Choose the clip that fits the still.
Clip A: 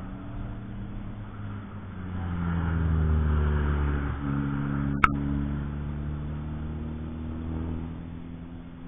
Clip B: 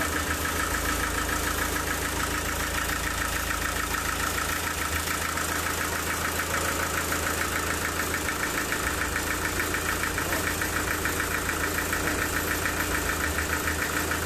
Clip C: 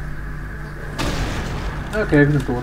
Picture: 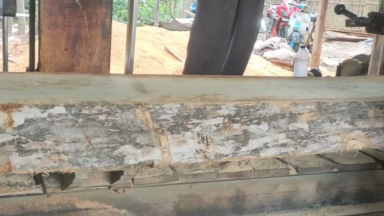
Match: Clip B